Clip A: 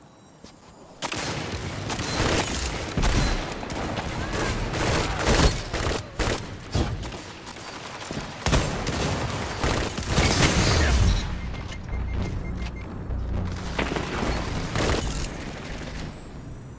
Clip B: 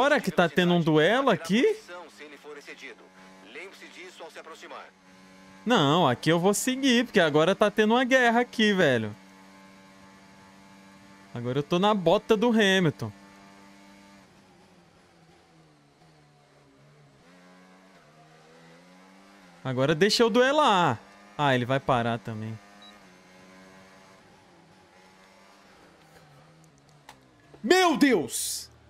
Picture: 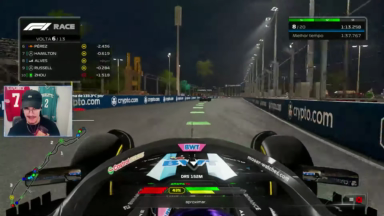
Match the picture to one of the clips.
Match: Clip B